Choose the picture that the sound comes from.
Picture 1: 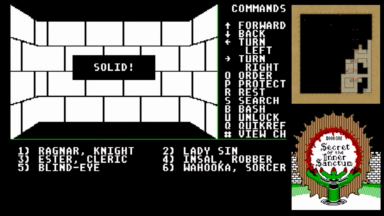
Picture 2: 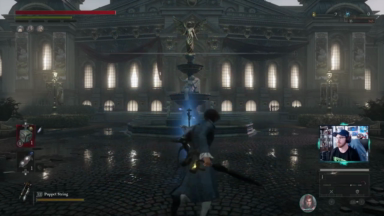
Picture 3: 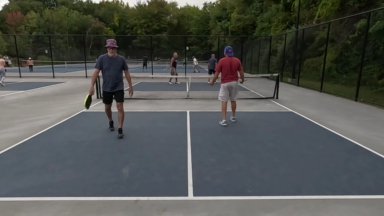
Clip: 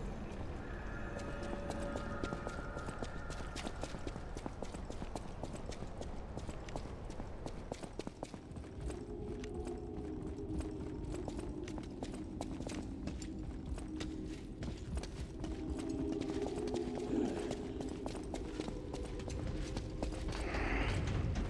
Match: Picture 2